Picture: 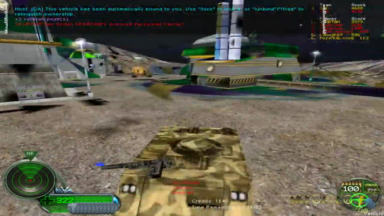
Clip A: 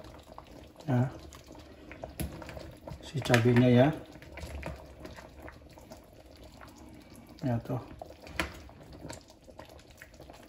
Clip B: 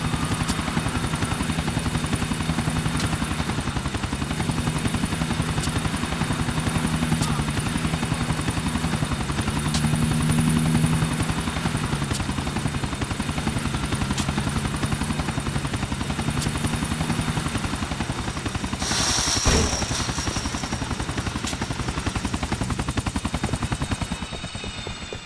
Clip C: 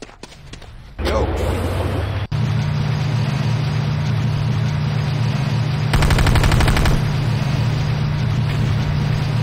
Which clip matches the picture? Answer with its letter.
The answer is C